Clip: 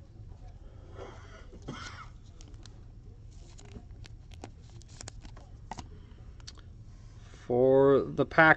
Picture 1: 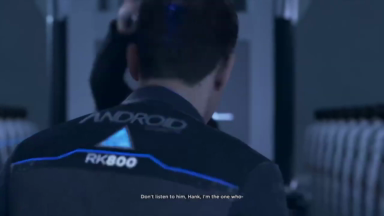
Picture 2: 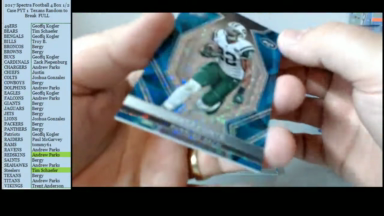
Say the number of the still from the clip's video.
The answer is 2